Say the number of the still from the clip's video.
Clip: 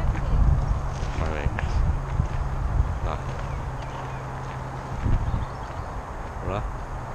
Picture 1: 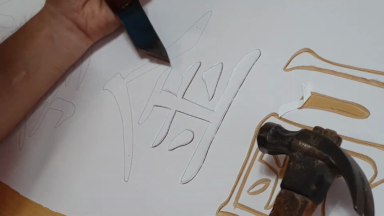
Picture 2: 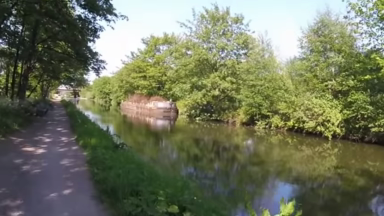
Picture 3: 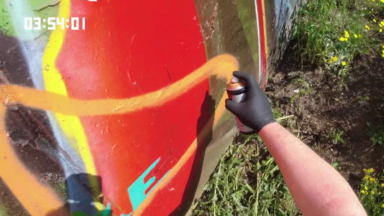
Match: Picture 2